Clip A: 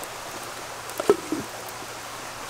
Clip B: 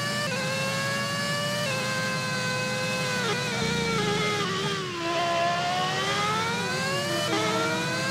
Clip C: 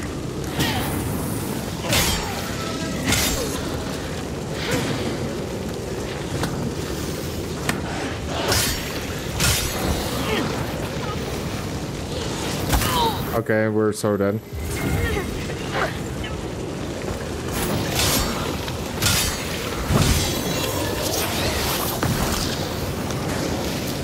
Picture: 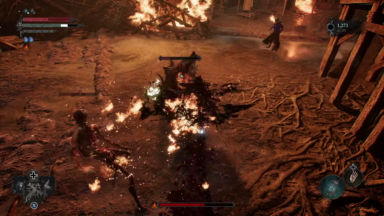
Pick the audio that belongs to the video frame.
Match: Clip C